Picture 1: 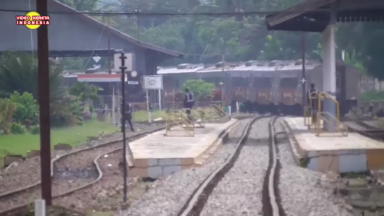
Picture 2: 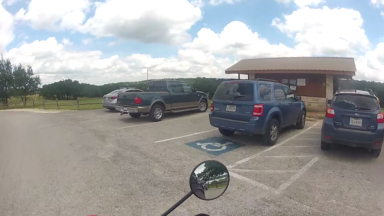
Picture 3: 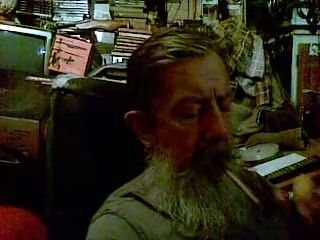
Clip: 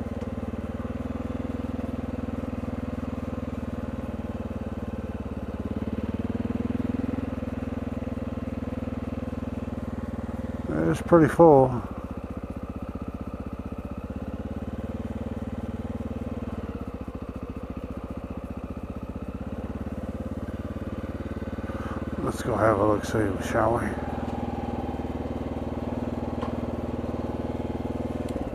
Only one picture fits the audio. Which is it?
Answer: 2